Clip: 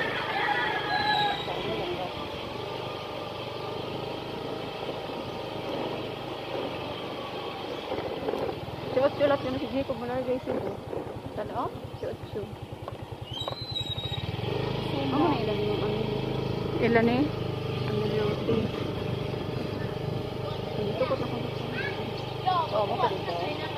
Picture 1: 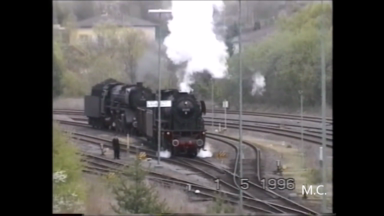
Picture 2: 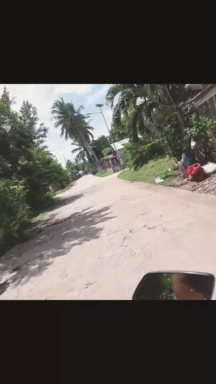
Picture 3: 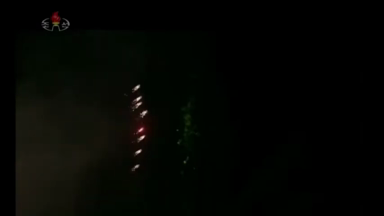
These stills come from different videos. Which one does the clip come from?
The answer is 2